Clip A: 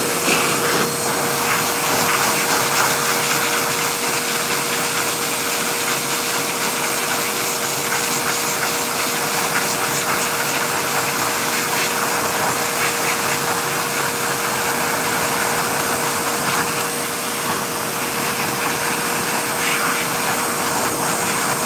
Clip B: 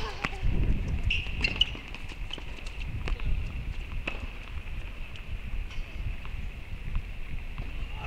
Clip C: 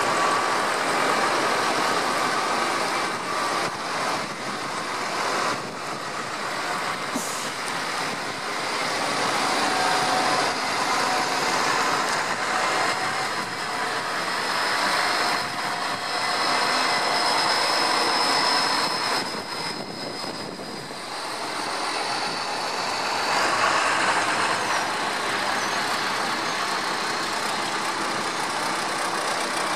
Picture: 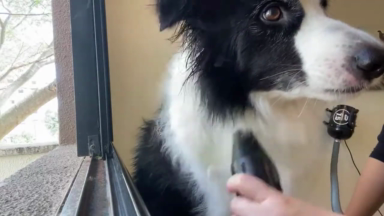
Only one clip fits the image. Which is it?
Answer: A